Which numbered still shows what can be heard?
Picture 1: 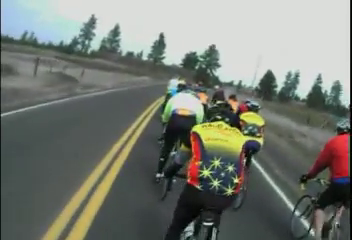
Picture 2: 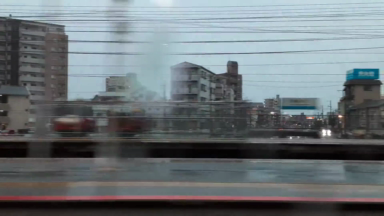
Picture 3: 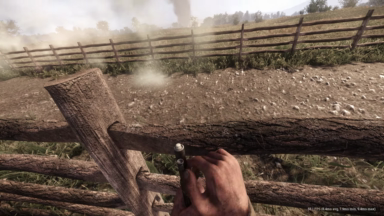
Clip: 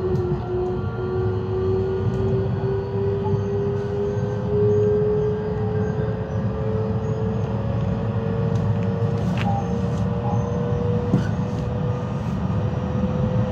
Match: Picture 2